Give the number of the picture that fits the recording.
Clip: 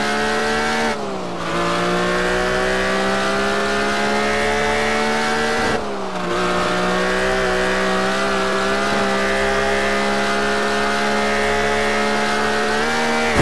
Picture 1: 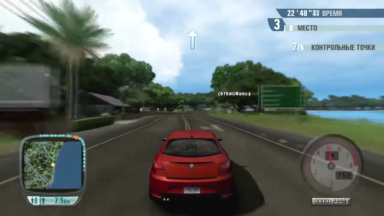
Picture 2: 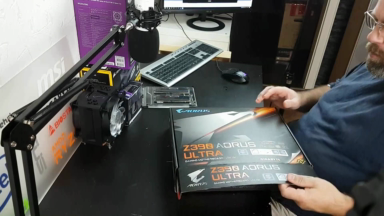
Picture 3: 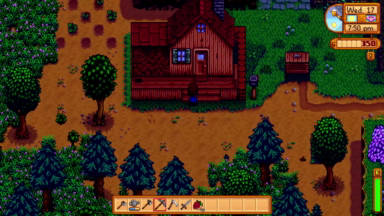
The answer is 1